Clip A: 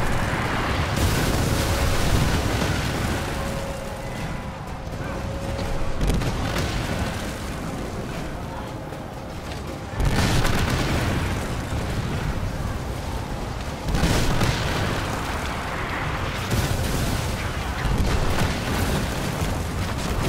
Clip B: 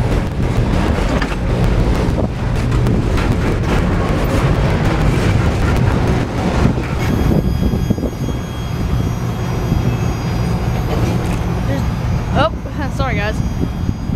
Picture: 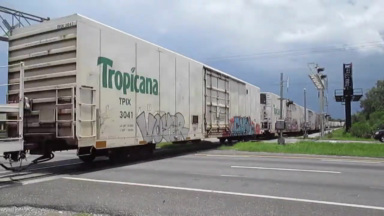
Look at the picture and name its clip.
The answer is B